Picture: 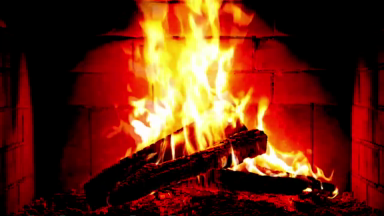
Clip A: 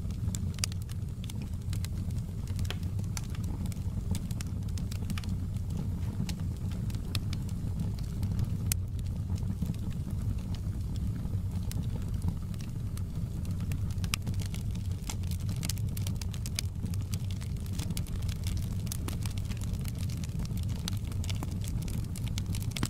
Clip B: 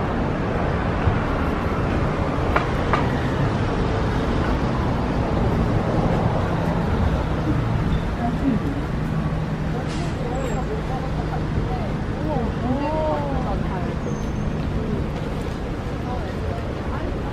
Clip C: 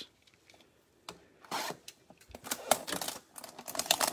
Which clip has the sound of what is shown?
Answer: A